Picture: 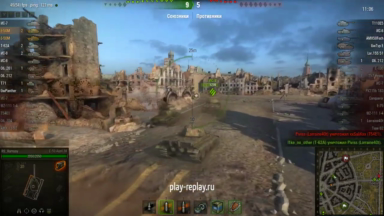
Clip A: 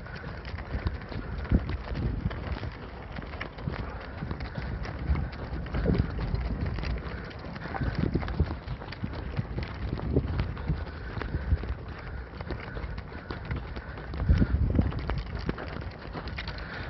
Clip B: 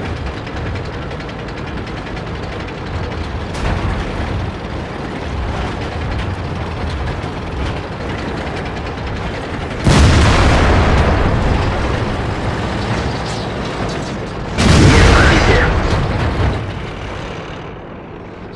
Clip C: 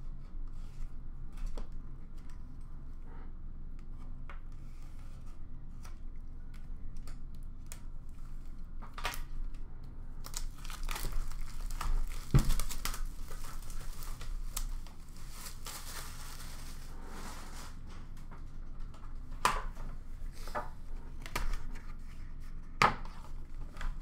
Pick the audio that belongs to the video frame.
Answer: B